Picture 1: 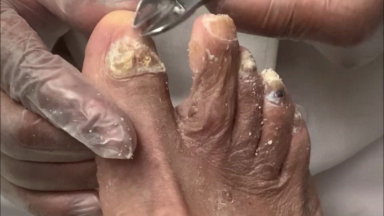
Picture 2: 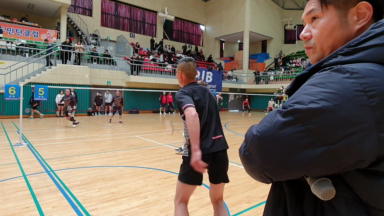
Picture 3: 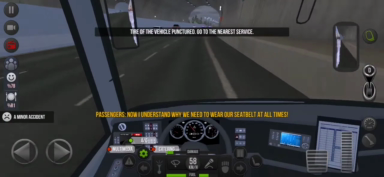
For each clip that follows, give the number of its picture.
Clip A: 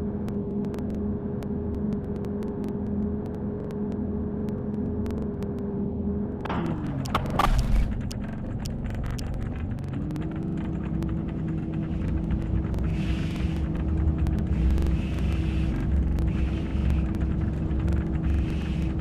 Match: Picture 3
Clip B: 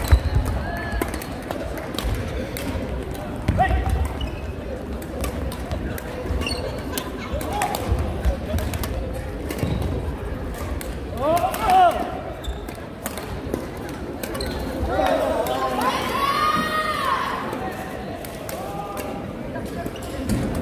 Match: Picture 2